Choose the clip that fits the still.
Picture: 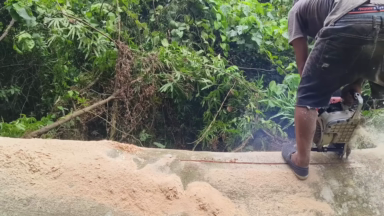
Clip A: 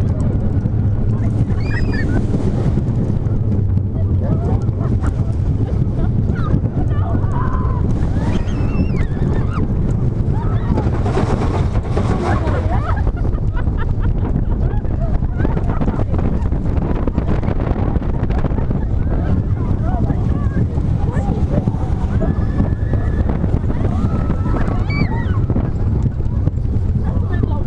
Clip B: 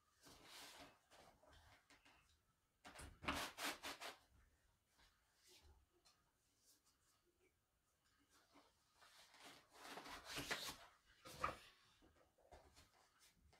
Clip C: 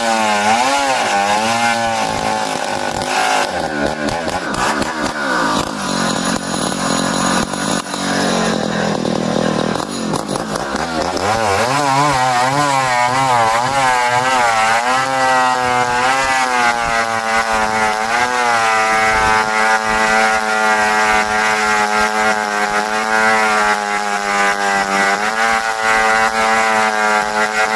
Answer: C